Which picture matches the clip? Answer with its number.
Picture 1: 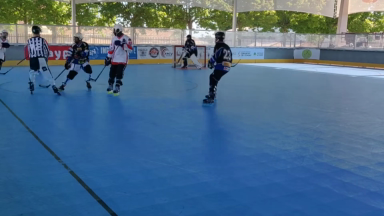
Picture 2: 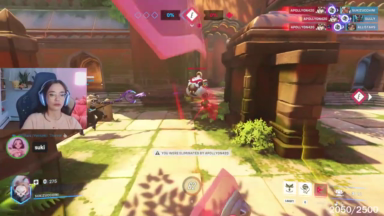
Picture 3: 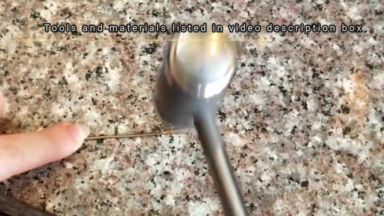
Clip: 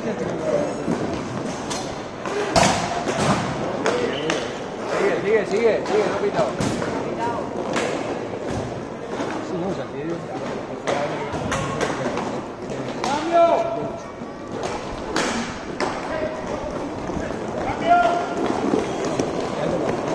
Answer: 1